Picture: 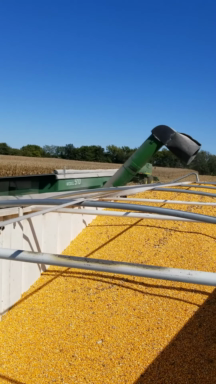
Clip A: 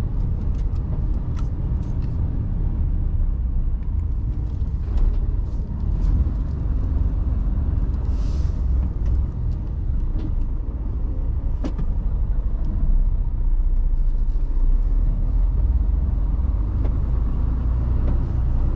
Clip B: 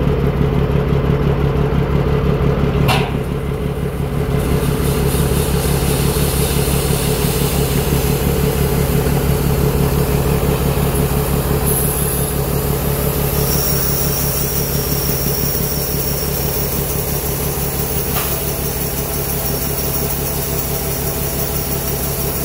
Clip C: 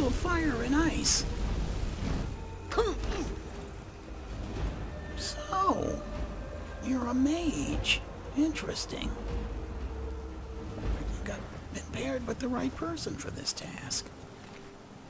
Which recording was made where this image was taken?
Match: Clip B